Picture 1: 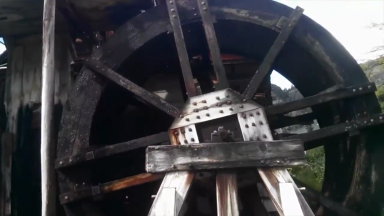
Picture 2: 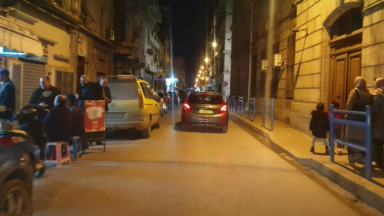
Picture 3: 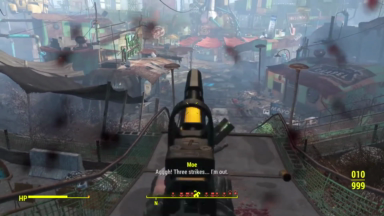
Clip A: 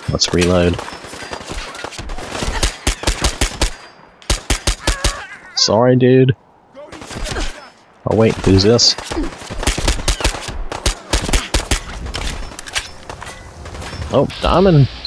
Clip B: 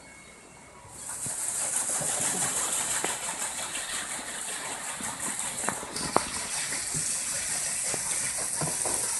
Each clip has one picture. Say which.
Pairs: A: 3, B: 1